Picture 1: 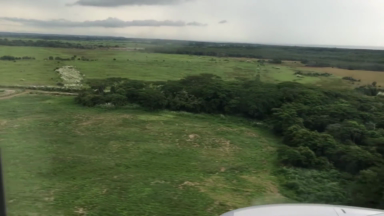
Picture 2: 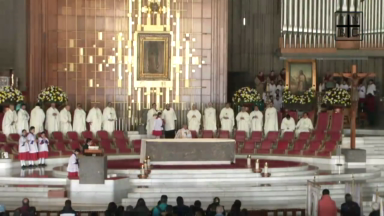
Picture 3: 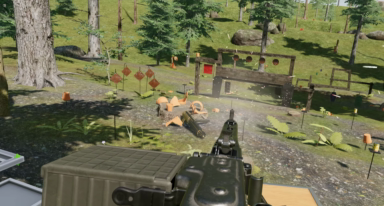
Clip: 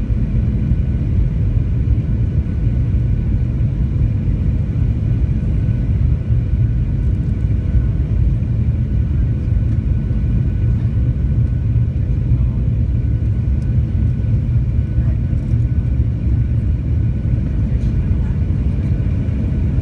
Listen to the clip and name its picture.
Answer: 1